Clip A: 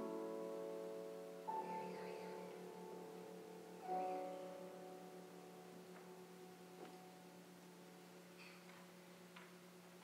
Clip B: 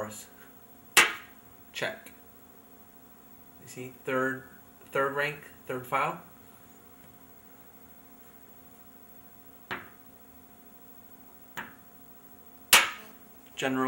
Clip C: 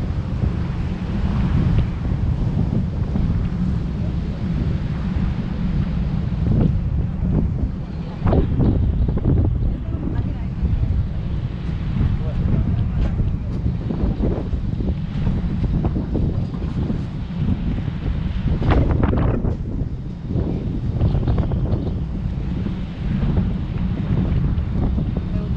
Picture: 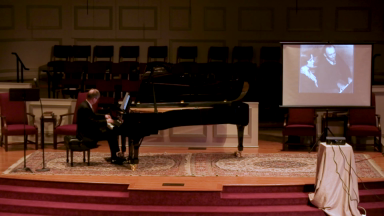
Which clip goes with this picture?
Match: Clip A